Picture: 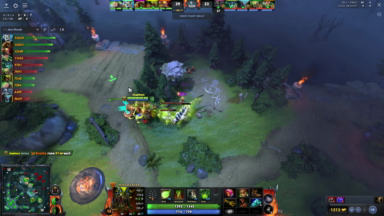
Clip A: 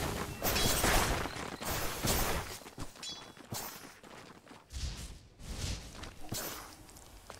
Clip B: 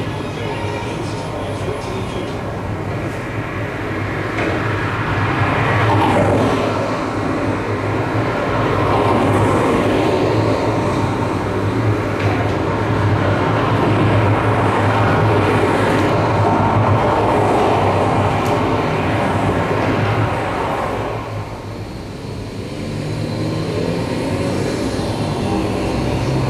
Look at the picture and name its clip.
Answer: A